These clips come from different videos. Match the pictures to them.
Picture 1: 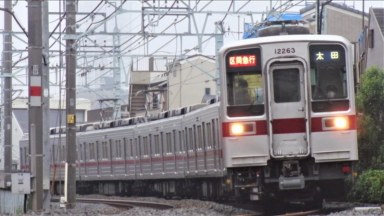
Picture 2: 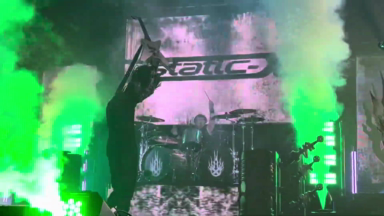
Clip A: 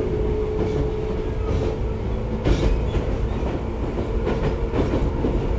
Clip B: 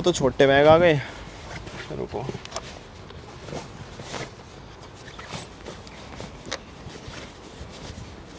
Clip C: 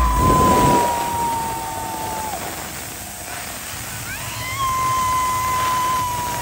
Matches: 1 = A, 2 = C